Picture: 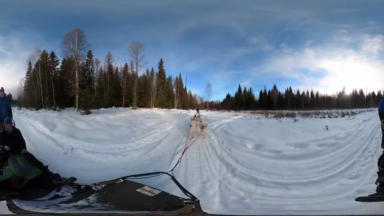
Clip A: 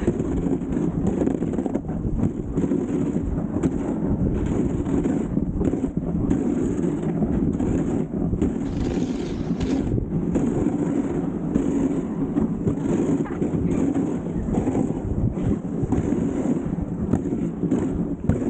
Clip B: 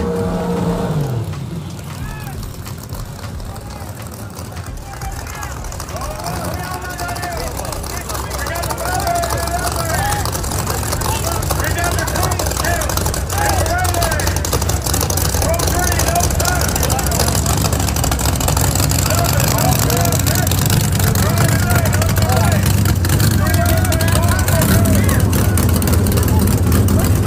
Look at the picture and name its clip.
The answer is A